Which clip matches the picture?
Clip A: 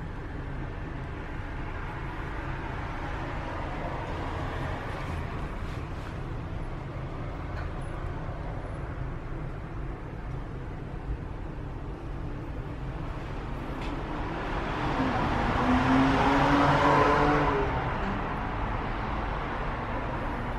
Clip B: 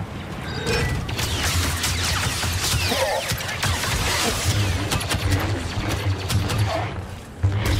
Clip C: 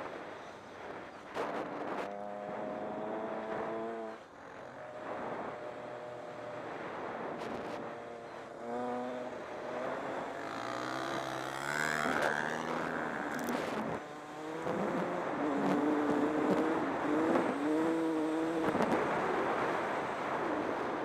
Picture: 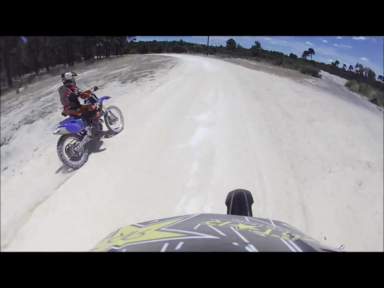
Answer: C